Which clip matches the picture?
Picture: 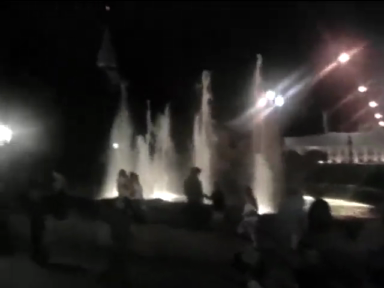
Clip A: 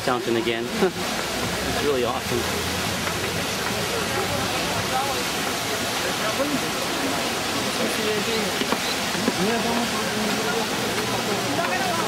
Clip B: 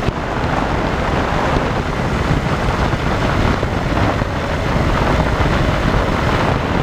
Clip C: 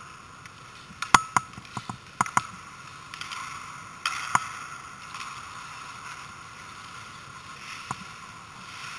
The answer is A